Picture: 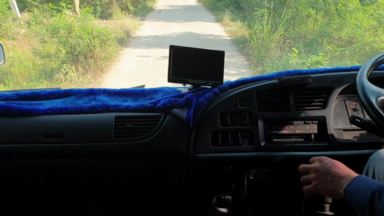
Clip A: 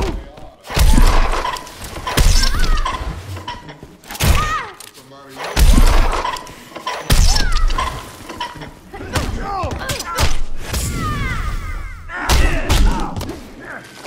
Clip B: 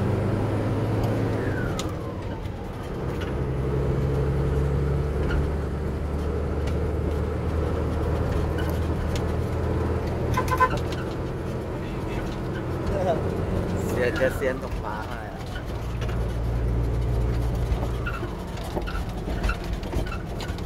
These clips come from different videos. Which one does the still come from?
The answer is B